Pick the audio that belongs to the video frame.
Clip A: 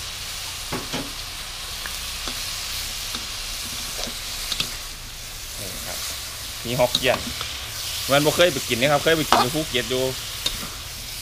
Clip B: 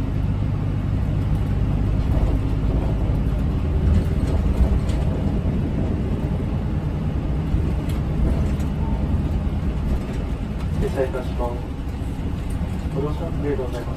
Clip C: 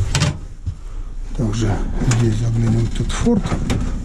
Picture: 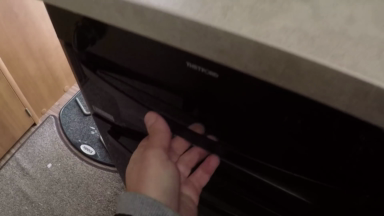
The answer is C